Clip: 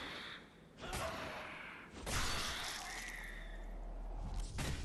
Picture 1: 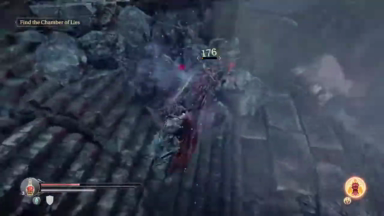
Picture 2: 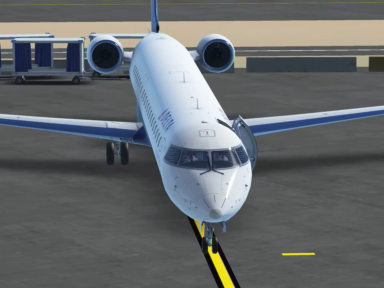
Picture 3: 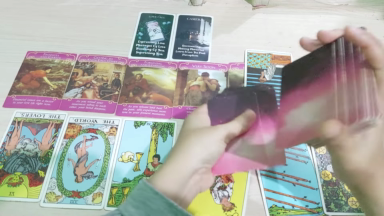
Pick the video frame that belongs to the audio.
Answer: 1